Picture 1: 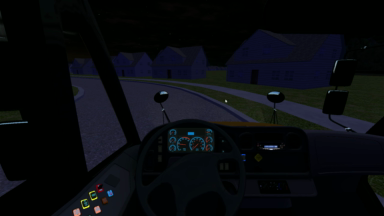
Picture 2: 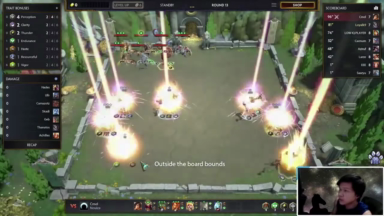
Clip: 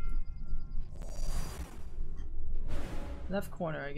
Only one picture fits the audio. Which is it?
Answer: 2